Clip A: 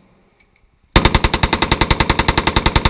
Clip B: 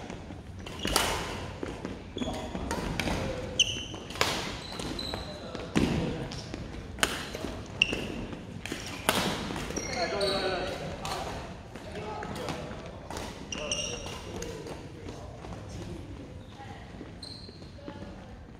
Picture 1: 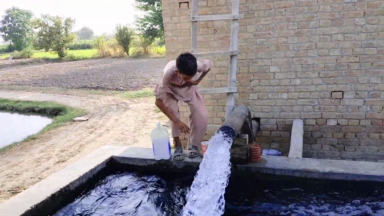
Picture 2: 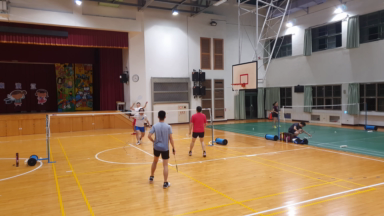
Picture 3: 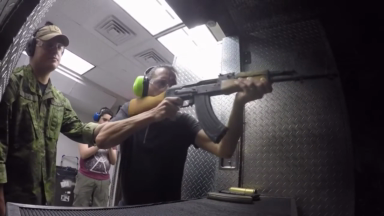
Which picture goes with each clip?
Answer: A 3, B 2